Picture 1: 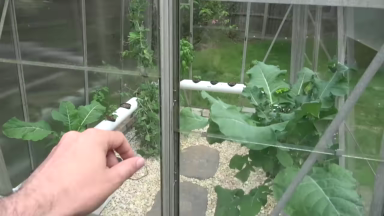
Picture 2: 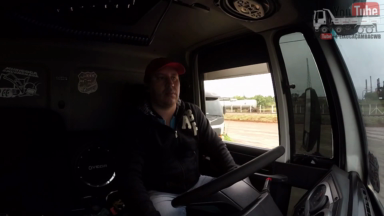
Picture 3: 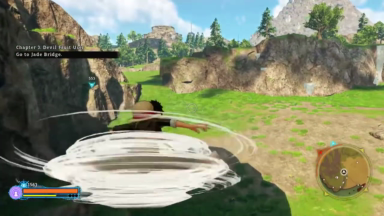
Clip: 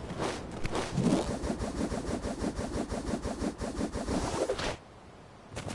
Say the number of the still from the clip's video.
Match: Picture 3